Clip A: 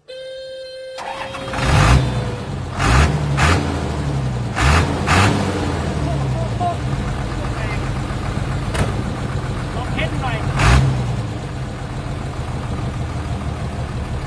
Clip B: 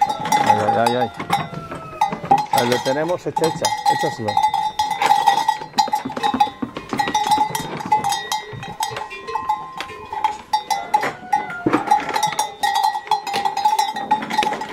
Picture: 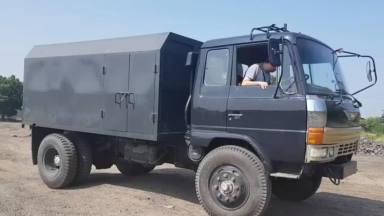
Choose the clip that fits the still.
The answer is A